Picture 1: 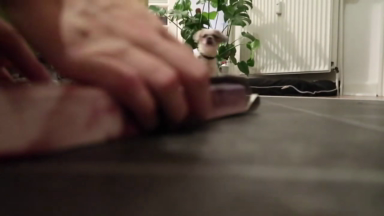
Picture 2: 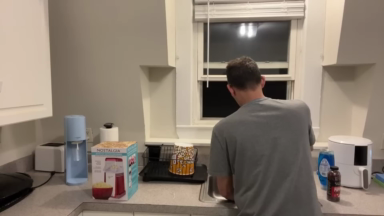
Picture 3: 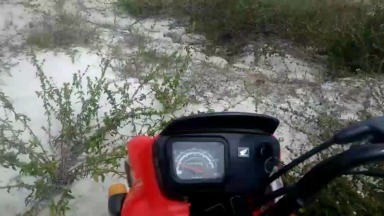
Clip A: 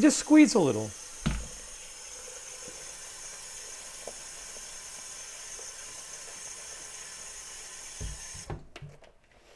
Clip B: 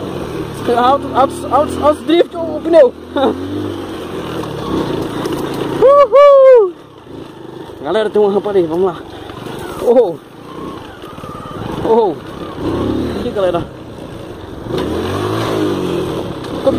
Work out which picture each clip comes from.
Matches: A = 2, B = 3